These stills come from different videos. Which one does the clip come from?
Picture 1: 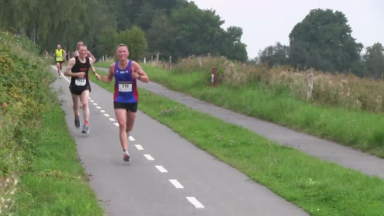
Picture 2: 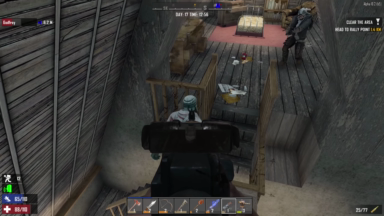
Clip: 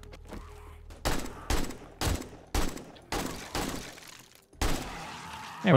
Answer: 2